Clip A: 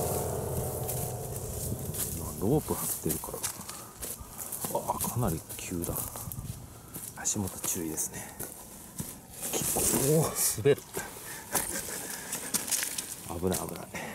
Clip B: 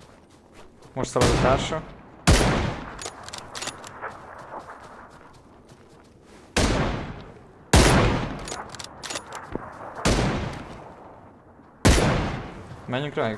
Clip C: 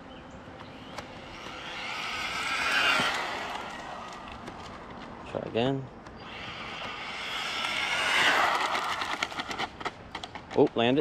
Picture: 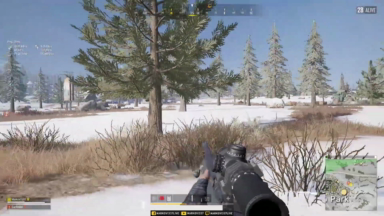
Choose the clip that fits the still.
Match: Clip B